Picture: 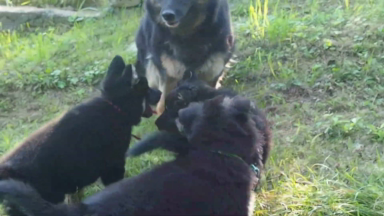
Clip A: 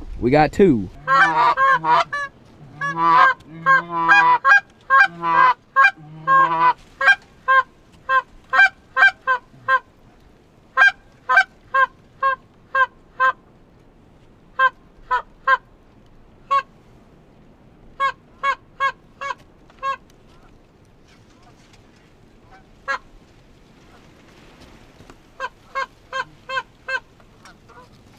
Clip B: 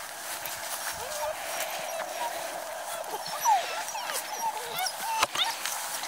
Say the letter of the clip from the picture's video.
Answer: B